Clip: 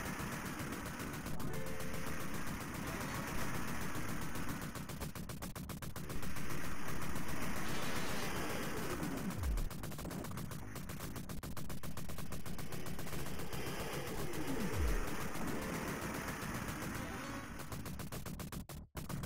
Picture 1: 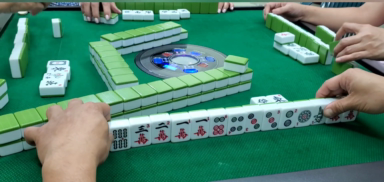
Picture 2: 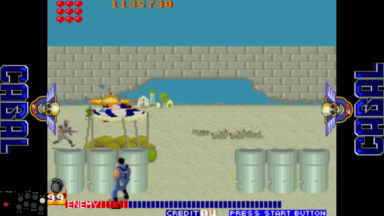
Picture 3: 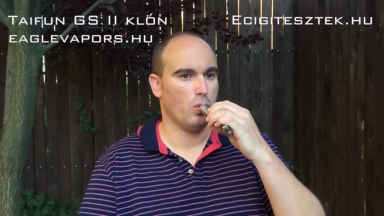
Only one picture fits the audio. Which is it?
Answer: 2